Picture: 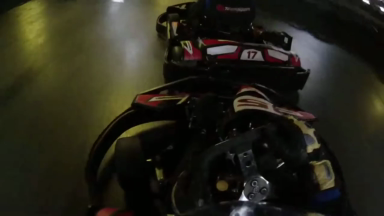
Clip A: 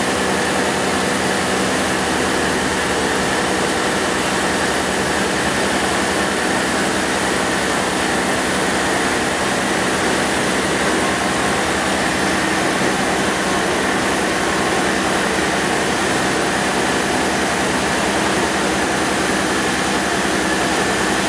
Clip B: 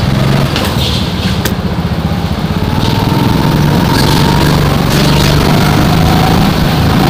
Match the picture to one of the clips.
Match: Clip B